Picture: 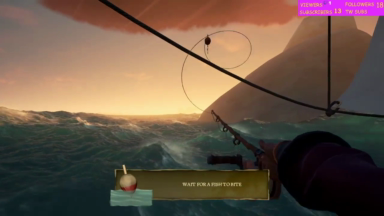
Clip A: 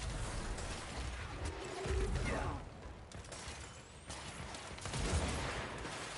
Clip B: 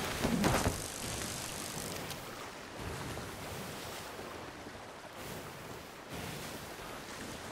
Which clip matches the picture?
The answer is B